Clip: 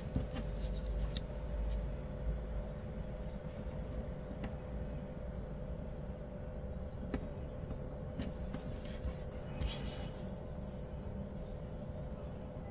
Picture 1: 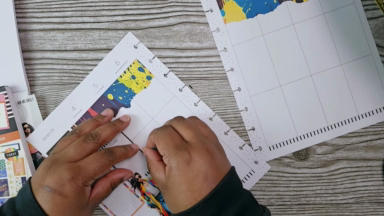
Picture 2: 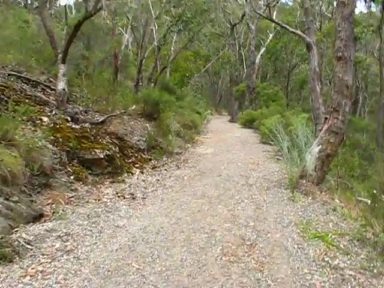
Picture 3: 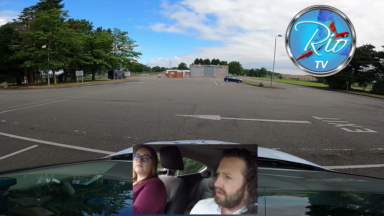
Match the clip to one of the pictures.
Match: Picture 1